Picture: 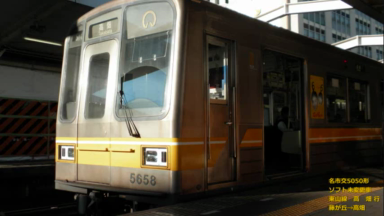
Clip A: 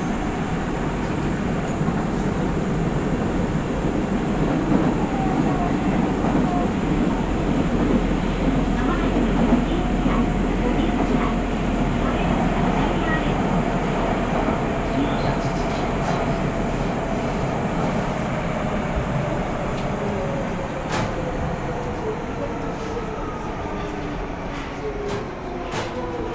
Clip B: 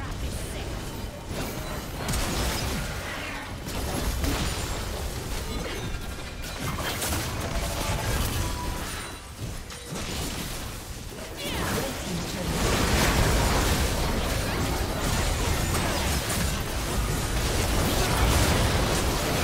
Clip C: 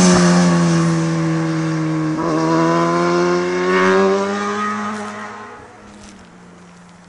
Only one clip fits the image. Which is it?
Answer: A